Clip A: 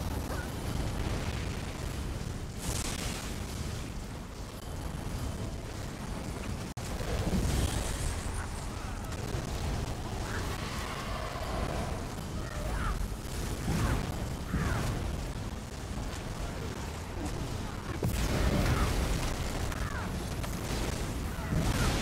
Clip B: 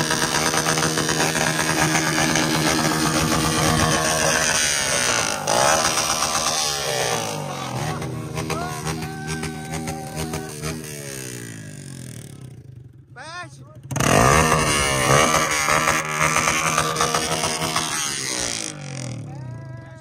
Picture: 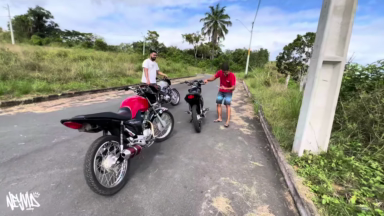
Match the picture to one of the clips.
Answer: B